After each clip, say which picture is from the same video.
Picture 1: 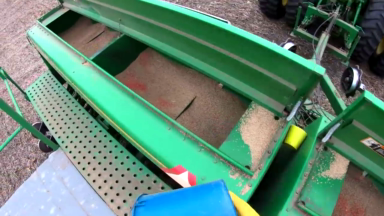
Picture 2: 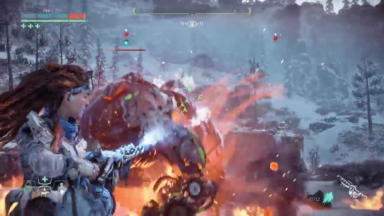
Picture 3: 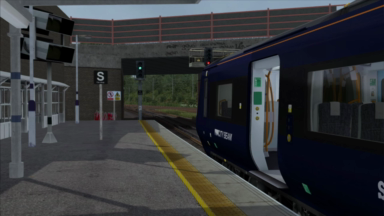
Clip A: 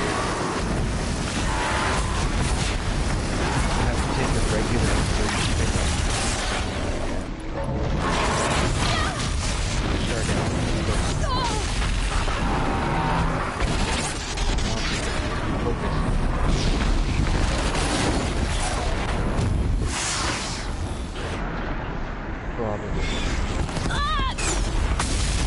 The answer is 2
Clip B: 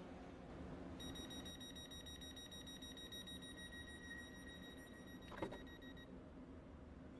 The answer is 3